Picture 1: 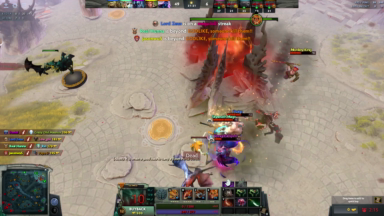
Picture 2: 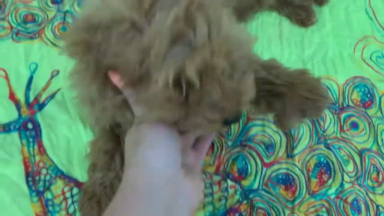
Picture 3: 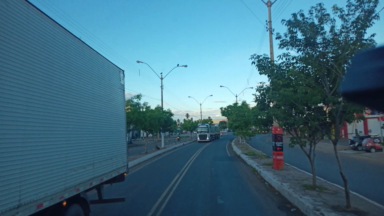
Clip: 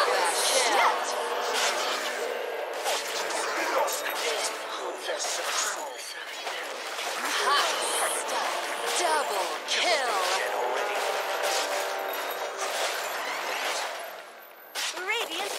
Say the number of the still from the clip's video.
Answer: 1